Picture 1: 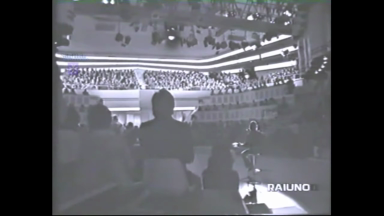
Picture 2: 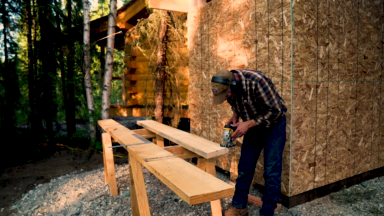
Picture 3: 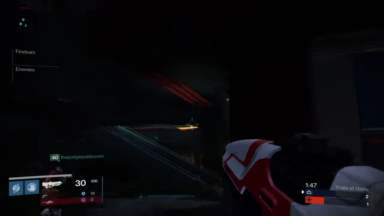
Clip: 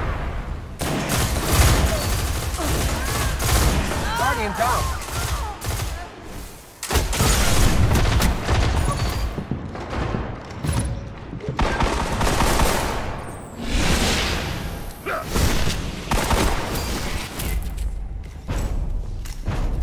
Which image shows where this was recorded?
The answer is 3